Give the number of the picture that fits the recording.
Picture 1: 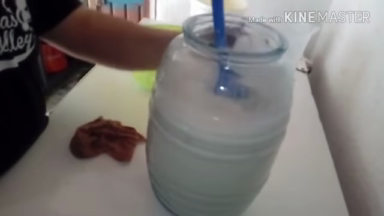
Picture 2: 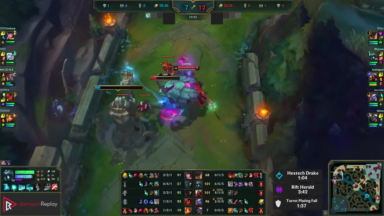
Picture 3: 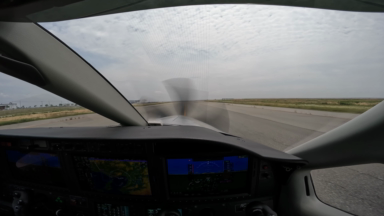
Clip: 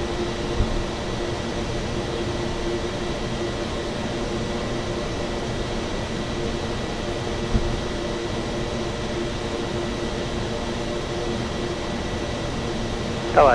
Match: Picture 3